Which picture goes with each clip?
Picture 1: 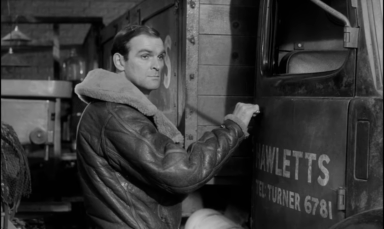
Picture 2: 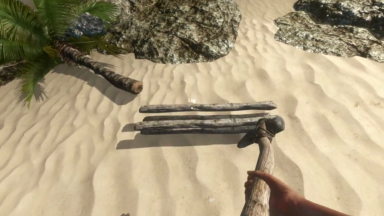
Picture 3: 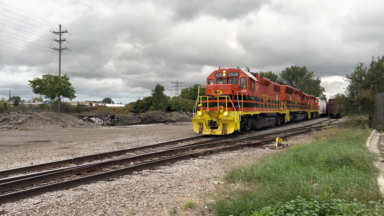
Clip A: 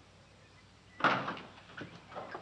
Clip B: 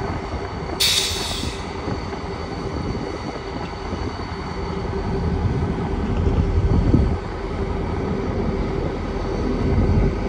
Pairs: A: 1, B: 3